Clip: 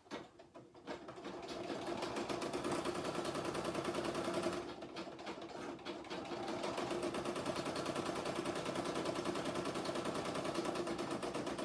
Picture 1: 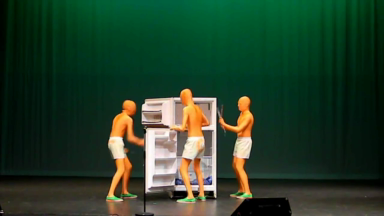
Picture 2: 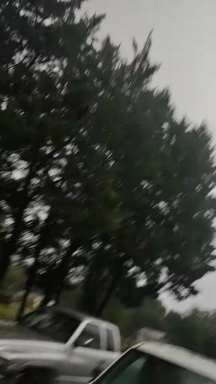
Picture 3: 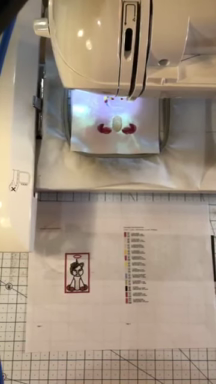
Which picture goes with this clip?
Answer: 3